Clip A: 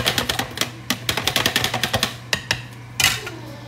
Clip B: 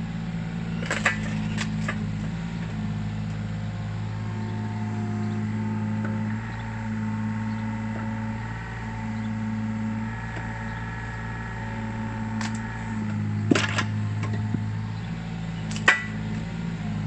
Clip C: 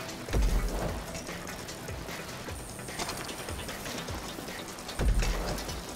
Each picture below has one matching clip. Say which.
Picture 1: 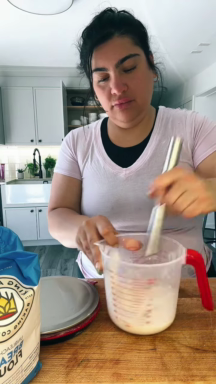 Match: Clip A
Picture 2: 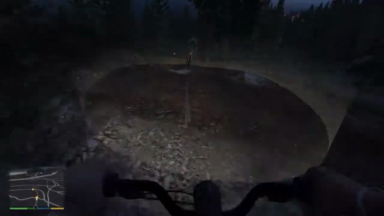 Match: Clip C